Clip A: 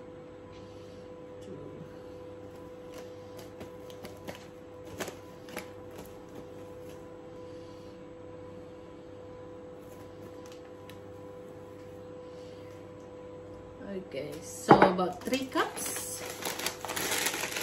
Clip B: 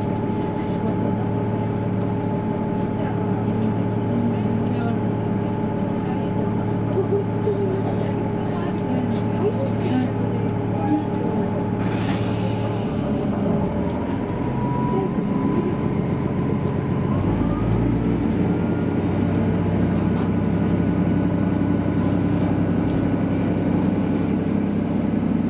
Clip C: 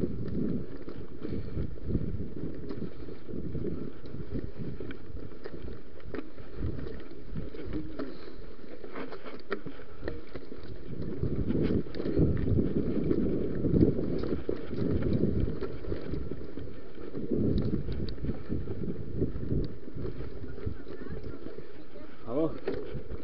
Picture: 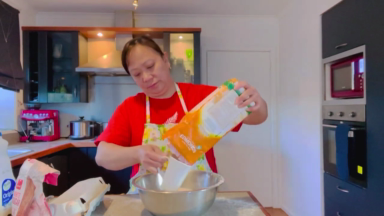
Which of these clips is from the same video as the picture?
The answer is A